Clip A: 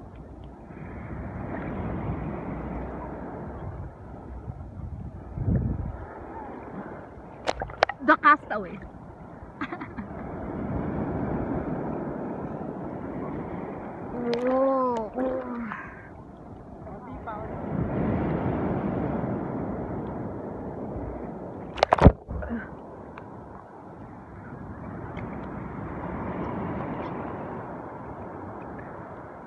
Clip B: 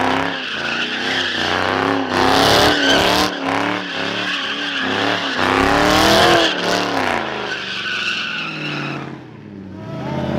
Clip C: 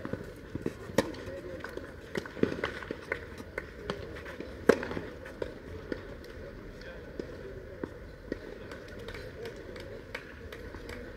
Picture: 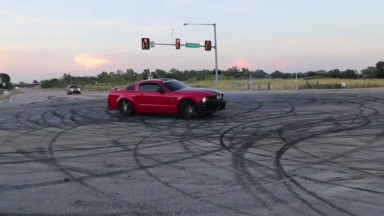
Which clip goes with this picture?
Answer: B